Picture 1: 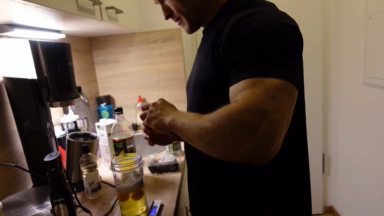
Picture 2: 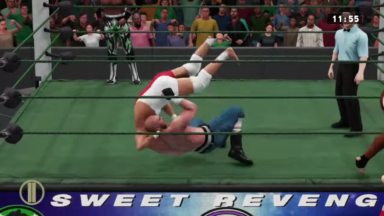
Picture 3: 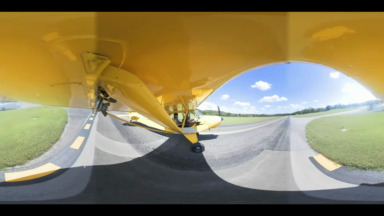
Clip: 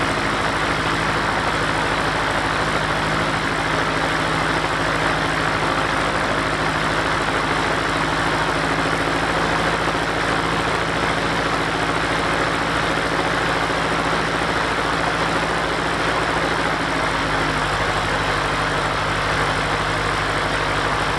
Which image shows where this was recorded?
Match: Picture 3